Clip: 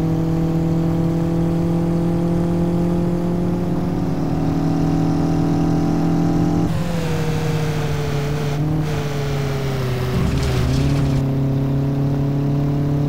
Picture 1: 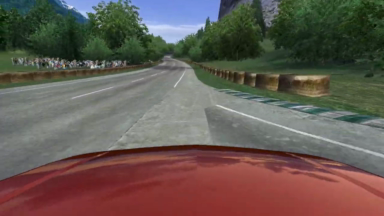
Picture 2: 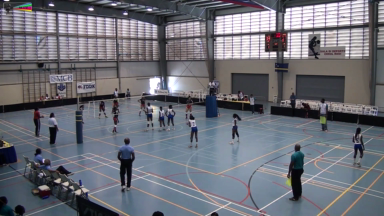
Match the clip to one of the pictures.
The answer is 1